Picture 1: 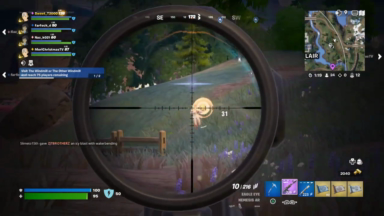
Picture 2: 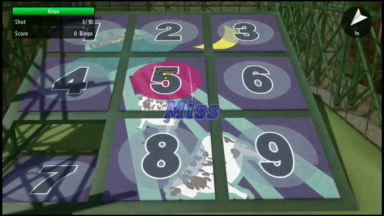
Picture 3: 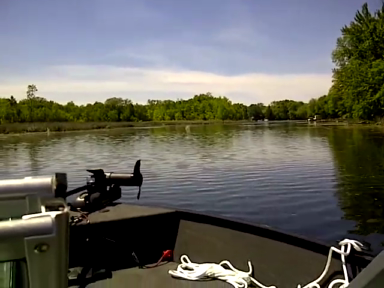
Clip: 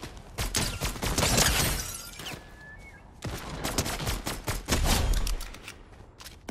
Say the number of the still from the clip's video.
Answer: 1